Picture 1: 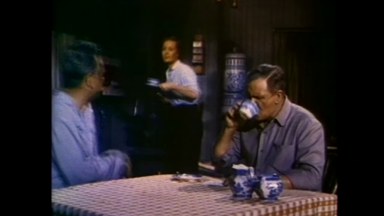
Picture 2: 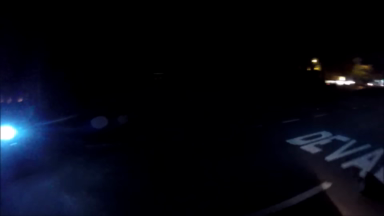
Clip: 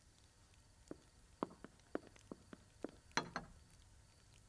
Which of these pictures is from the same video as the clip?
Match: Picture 1